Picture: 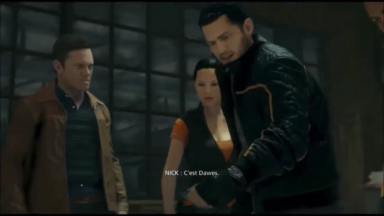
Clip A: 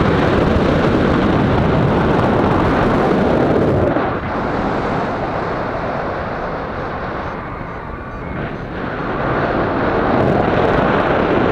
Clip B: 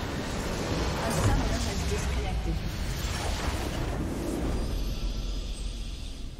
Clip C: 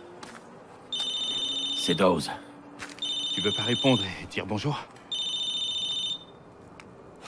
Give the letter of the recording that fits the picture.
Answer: C